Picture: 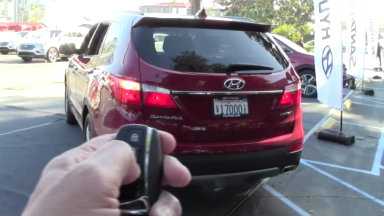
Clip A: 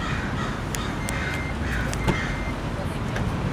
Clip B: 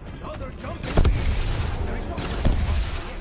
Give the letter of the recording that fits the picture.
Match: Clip A